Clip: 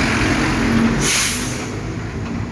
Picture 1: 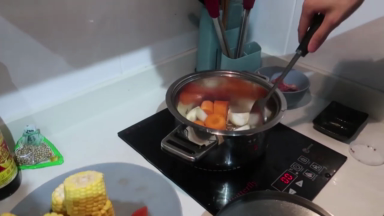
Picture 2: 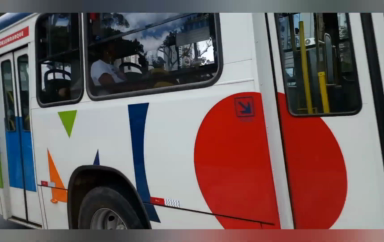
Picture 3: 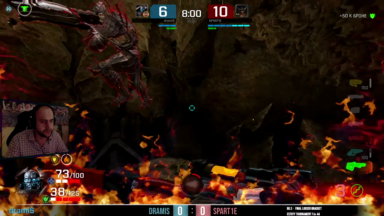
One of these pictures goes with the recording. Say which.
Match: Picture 2